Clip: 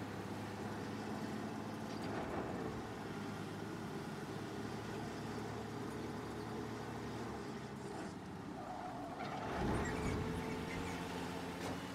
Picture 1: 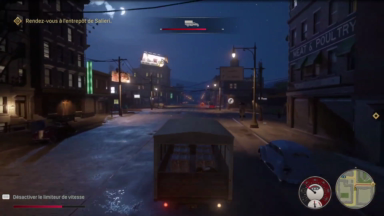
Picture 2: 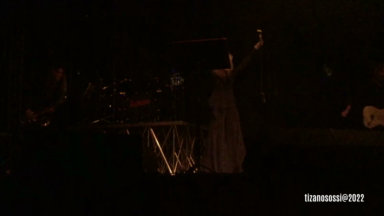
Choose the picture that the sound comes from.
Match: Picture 1